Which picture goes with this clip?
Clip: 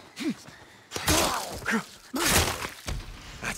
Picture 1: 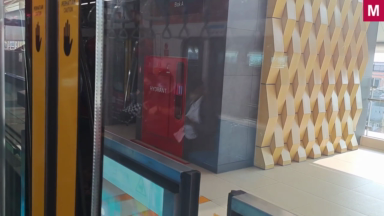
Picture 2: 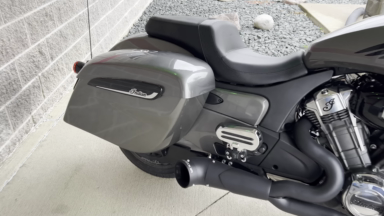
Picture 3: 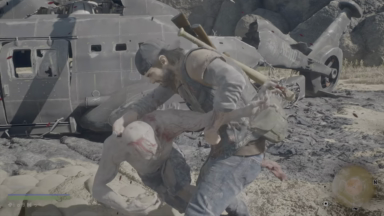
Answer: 3